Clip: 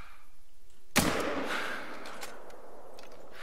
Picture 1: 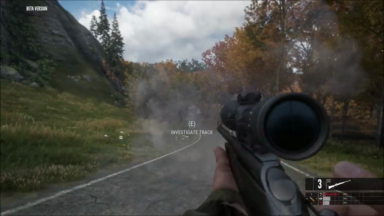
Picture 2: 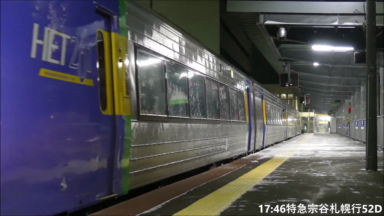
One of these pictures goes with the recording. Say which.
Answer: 1